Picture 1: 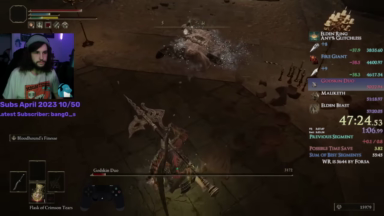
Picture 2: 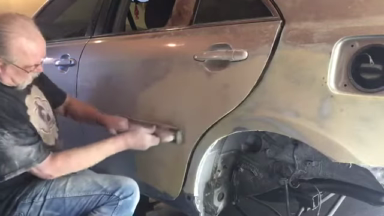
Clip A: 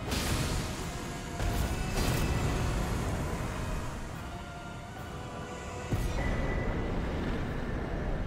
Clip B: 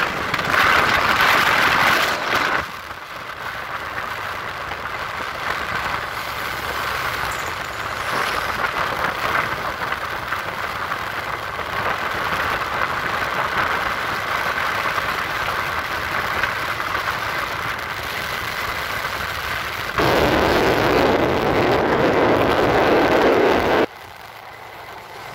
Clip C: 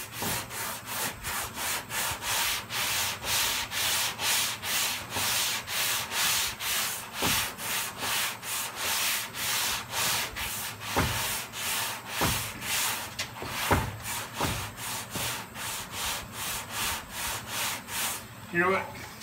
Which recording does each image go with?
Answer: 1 A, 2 C